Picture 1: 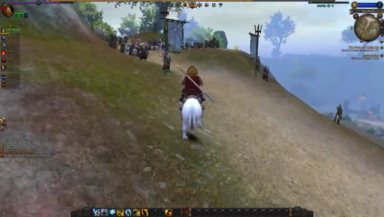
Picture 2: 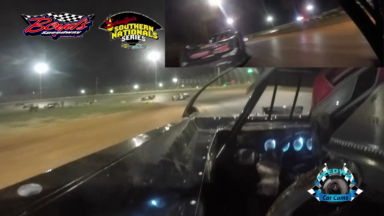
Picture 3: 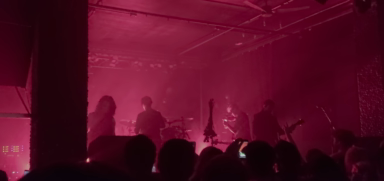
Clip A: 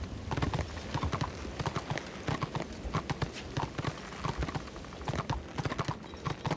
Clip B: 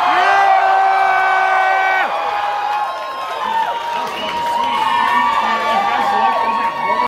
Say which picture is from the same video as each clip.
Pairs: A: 1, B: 3